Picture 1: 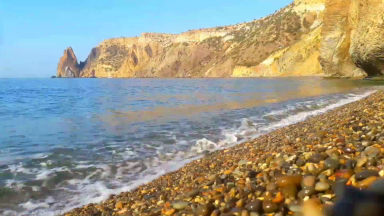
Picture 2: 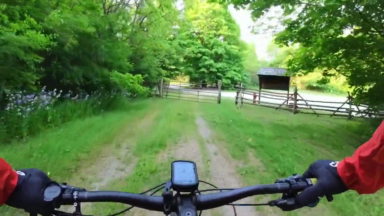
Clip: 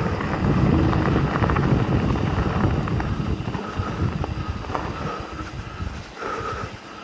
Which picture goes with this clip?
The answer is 2